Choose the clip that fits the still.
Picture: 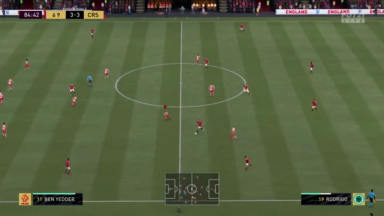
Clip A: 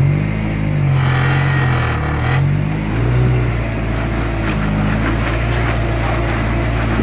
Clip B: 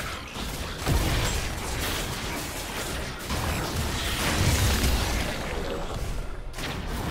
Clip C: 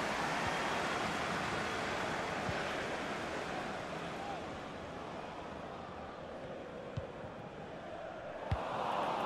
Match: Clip C